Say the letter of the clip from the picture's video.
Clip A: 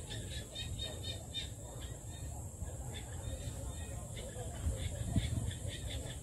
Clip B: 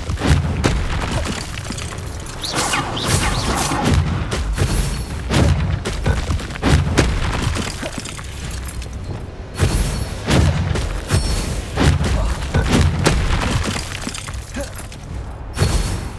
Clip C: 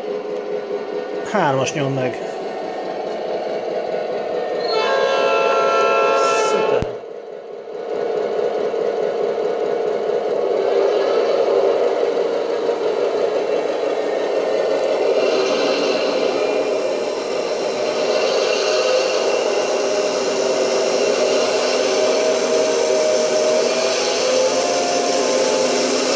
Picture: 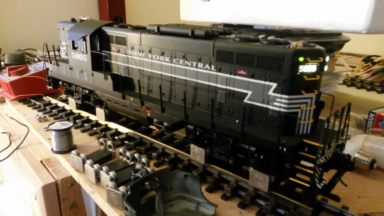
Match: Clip C